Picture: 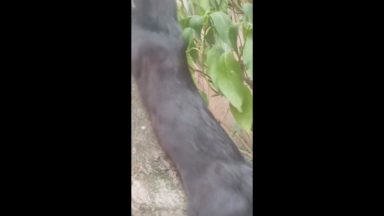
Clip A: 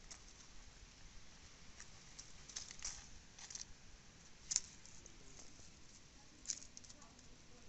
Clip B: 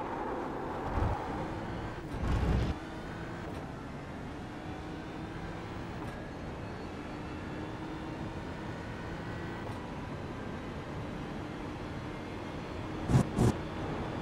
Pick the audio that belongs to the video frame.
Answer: A